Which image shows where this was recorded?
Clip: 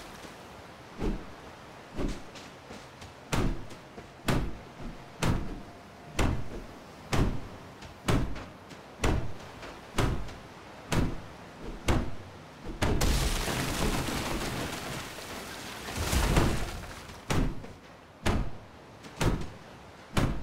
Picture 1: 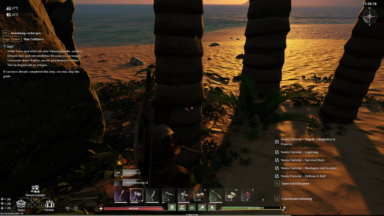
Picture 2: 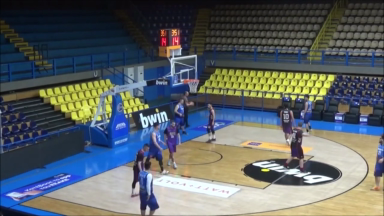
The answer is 1